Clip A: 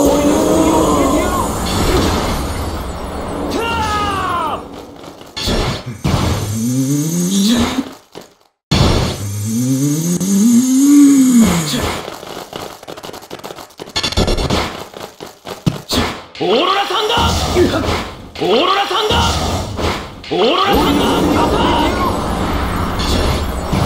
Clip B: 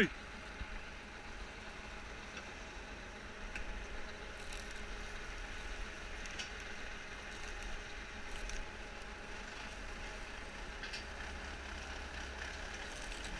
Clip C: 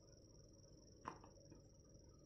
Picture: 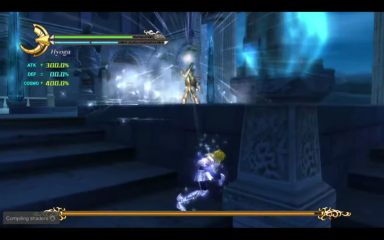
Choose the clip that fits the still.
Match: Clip A